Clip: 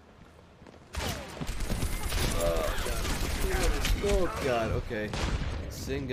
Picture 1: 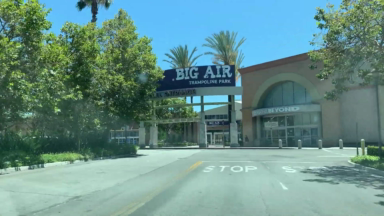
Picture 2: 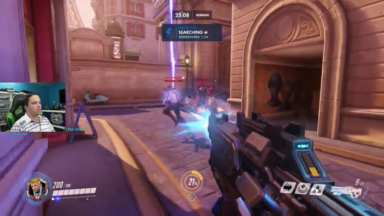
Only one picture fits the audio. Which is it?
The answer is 2